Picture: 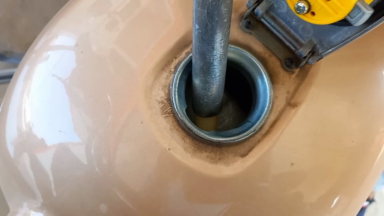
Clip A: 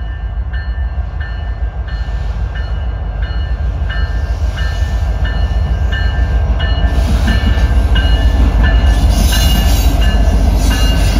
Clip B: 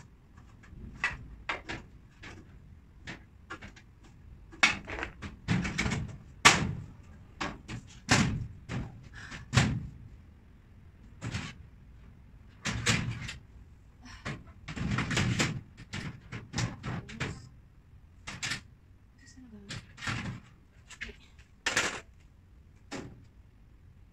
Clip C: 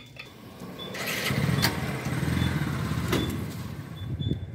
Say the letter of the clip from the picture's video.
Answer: C